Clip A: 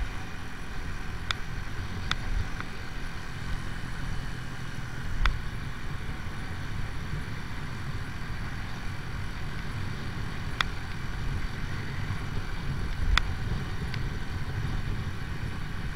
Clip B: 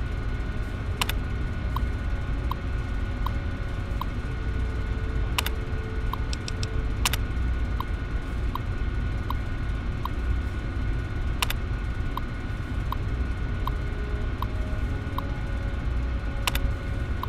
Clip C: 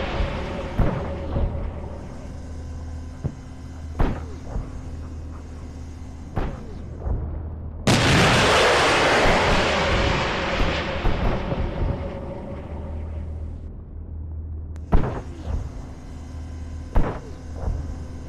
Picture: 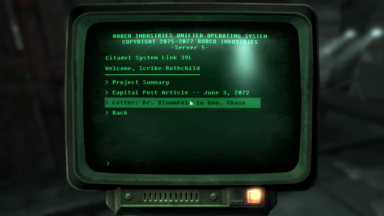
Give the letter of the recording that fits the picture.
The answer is B